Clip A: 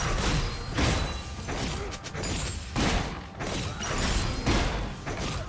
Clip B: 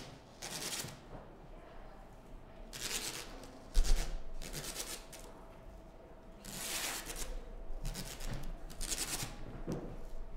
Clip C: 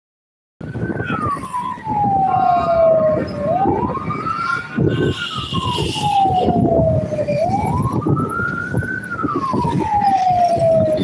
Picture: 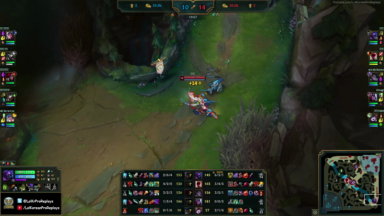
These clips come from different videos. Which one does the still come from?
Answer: A